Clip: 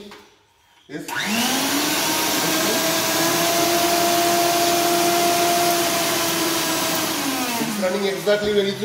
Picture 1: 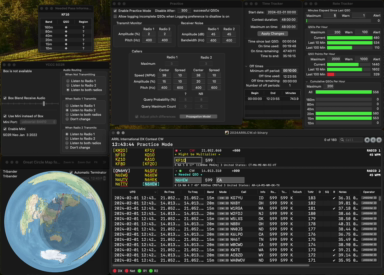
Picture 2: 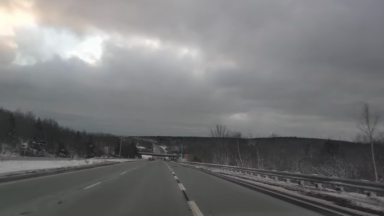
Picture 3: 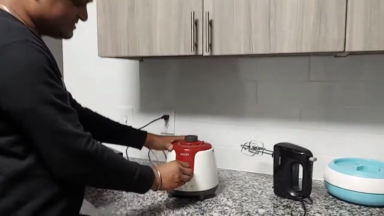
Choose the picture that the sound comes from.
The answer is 3